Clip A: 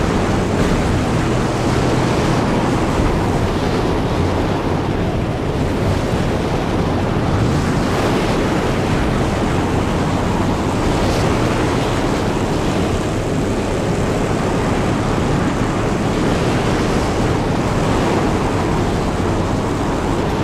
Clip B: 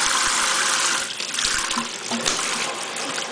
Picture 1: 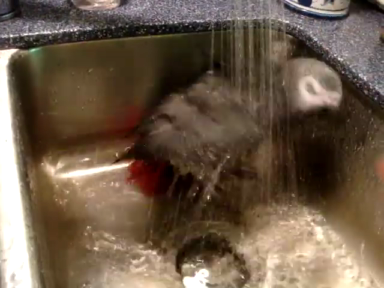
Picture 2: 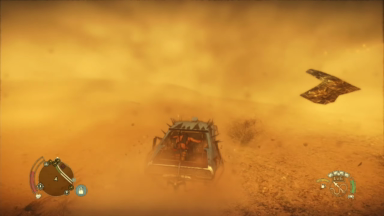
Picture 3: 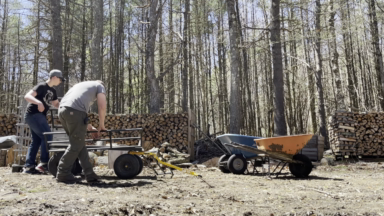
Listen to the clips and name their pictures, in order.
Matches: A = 2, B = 1